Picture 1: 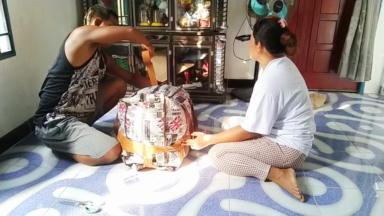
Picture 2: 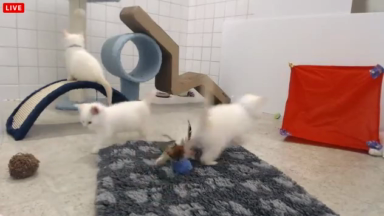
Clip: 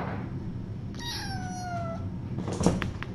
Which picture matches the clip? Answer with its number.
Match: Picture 2